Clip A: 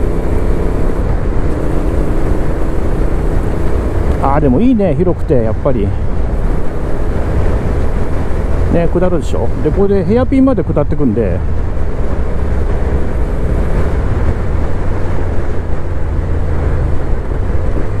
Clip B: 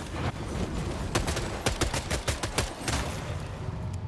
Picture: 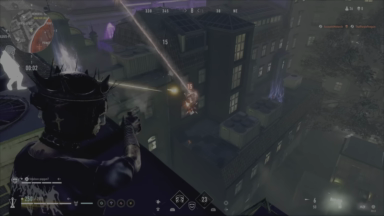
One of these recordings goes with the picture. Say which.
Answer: B